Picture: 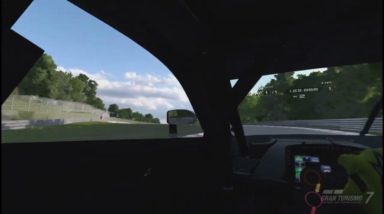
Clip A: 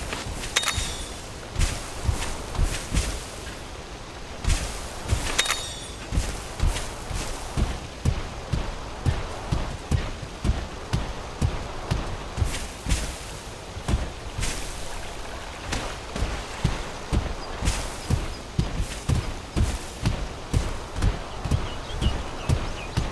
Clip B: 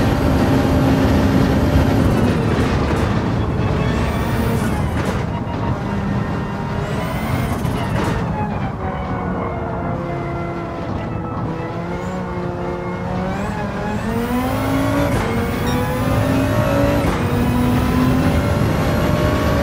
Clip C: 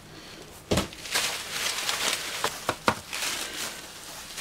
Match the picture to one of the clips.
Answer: B